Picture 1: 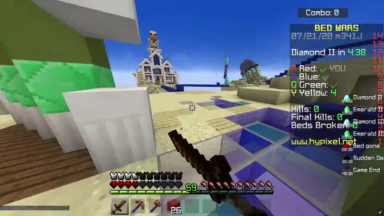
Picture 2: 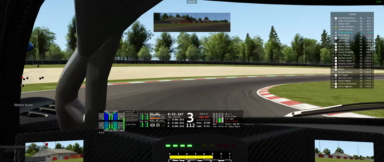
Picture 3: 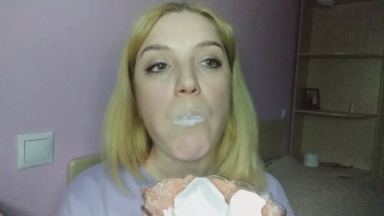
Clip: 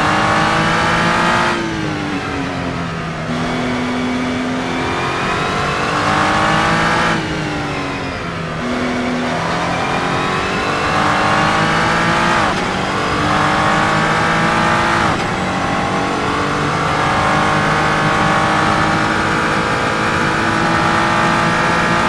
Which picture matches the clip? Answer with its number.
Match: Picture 2